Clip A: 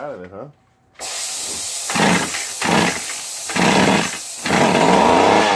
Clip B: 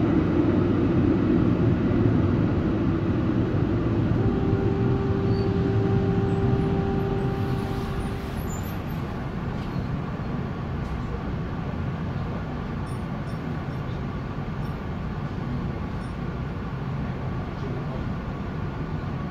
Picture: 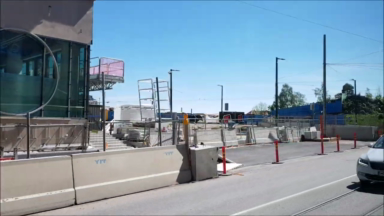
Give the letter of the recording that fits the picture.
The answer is B